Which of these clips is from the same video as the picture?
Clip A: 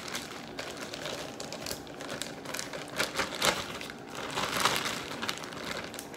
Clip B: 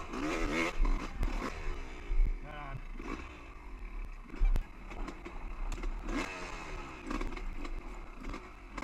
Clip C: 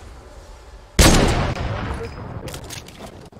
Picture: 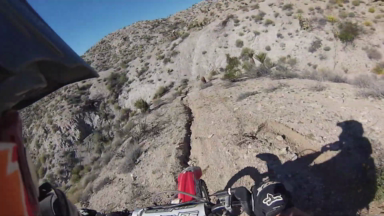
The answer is B